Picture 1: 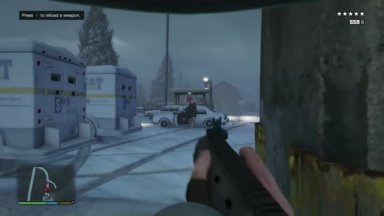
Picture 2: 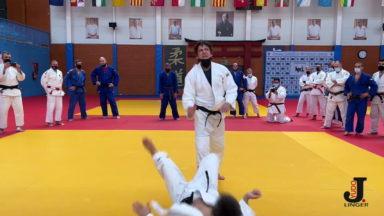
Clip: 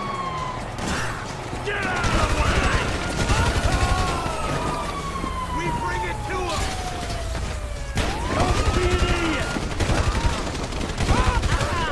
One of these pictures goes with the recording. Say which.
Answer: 1